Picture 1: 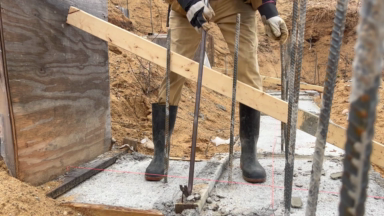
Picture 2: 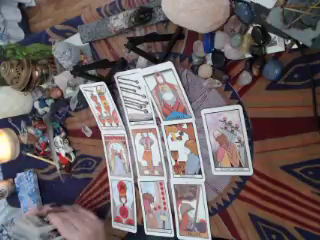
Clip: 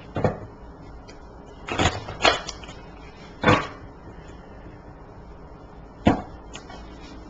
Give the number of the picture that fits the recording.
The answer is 2